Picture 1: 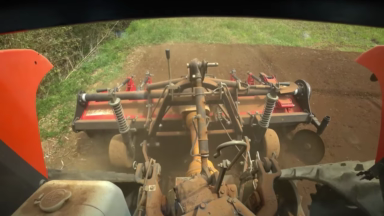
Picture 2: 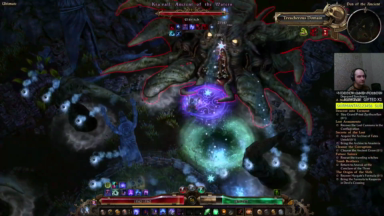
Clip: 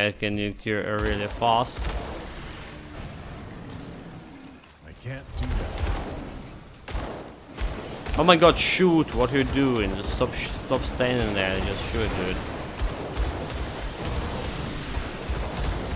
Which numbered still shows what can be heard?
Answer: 2